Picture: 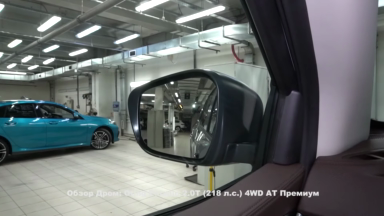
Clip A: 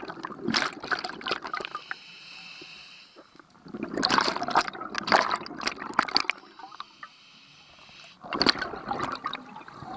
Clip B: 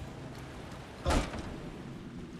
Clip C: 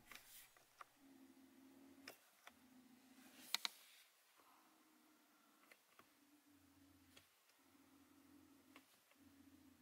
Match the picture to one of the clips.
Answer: C